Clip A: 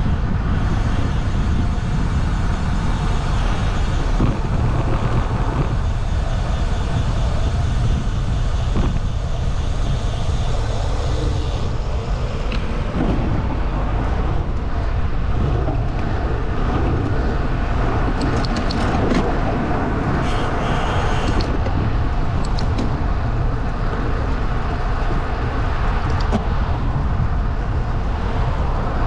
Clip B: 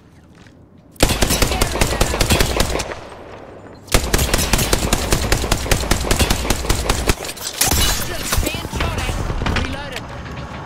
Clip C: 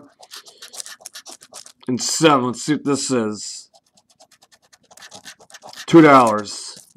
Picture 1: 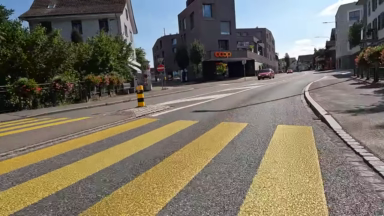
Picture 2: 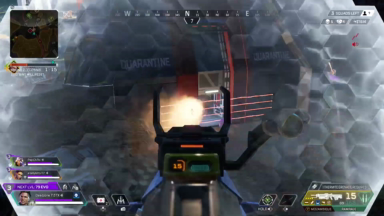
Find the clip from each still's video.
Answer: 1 A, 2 B